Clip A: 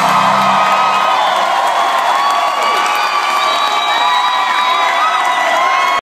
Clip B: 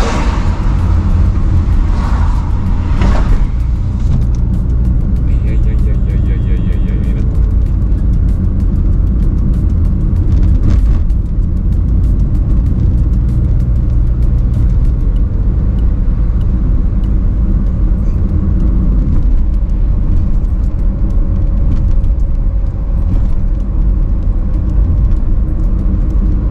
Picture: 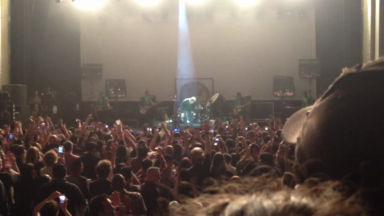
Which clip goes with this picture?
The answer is A